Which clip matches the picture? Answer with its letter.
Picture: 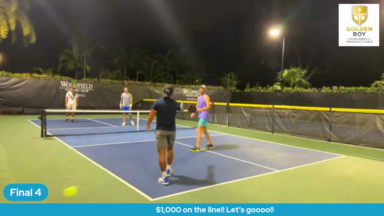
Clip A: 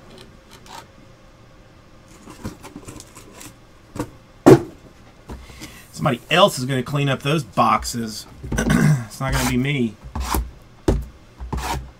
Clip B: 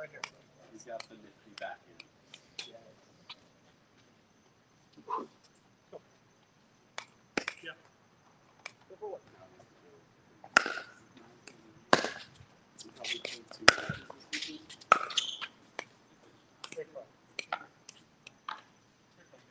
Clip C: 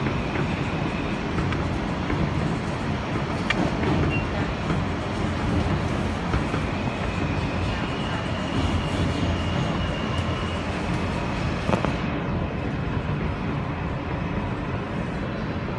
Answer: B